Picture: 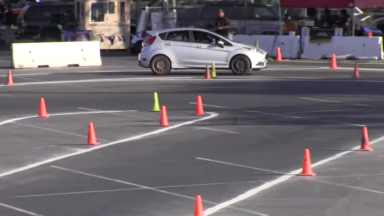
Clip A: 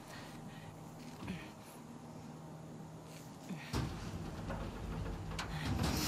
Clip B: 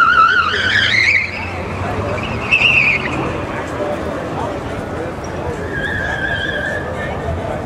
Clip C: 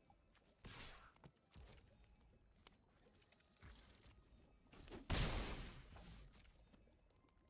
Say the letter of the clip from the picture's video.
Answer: B